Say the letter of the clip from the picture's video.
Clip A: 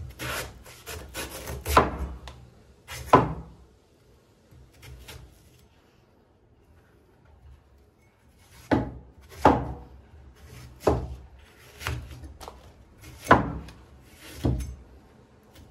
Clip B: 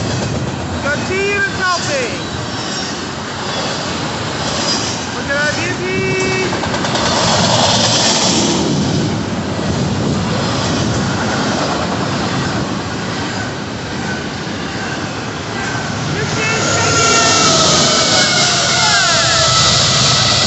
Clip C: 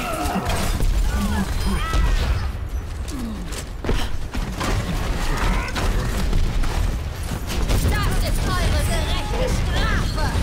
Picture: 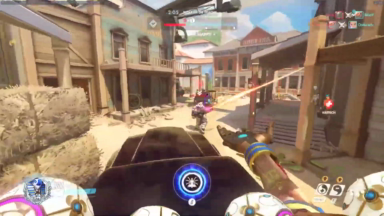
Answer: C